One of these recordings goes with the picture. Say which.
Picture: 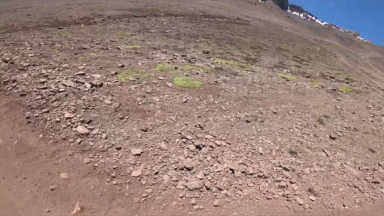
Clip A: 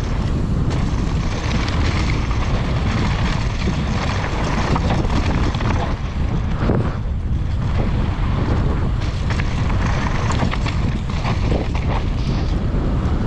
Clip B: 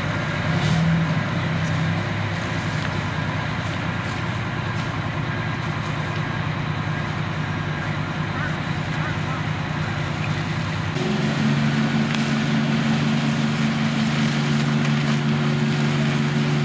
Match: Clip A